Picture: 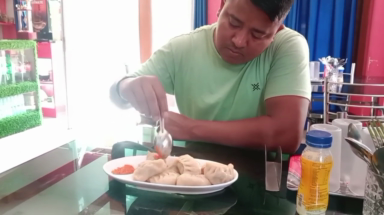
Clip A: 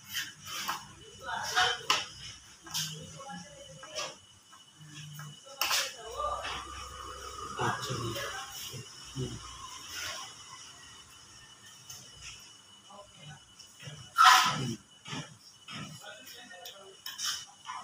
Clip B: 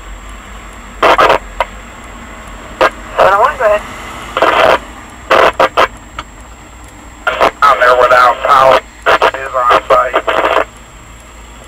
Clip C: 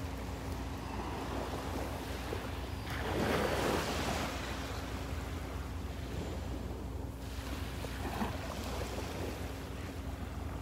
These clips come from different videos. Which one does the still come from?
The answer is A